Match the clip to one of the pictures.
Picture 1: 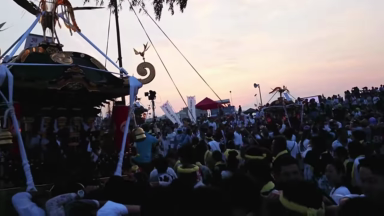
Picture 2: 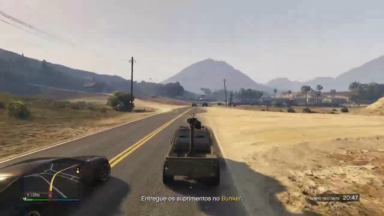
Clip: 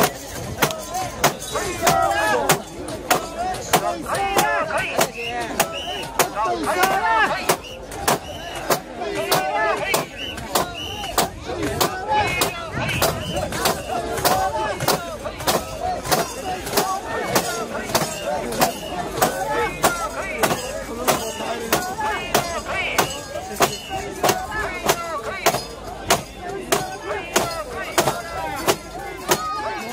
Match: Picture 1